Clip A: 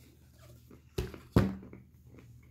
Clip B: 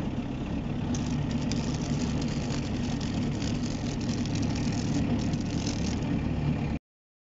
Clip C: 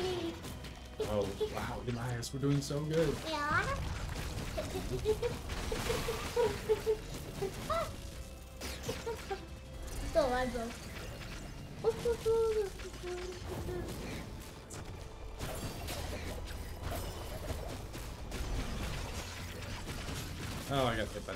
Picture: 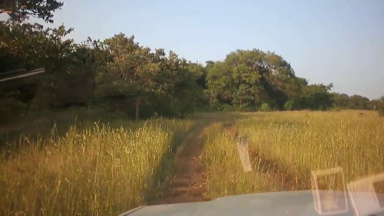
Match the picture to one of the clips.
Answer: B